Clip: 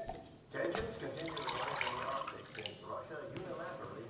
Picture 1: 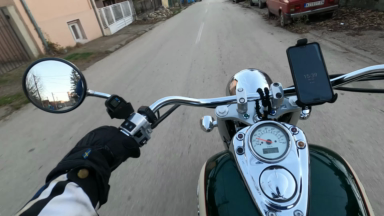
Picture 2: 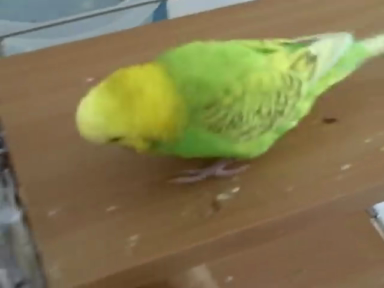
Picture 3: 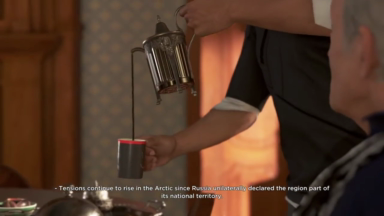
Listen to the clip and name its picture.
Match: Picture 3